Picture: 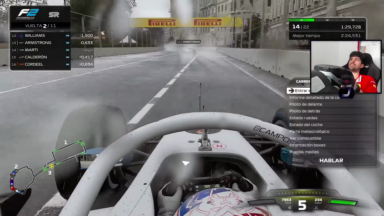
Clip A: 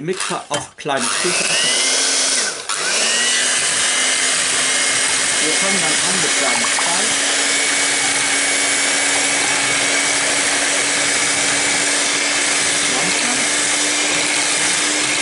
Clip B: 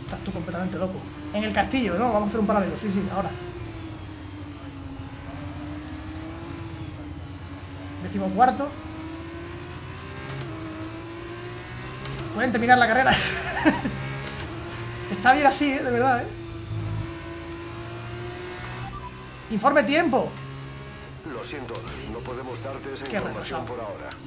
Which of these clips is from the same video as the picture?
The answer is B